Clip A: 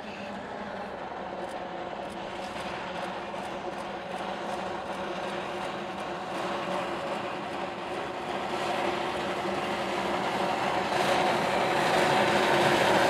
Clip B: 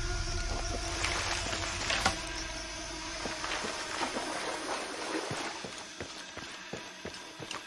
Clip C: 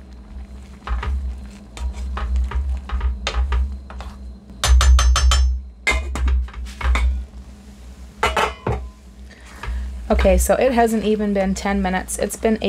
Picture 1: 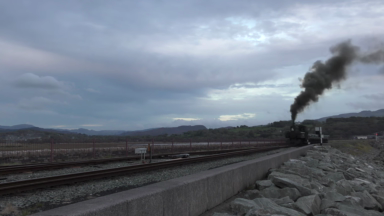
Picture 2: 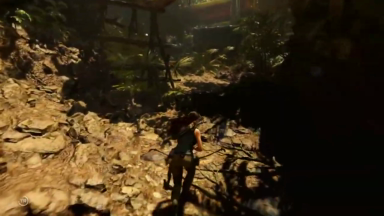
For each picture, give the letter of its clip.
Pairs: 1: A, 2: B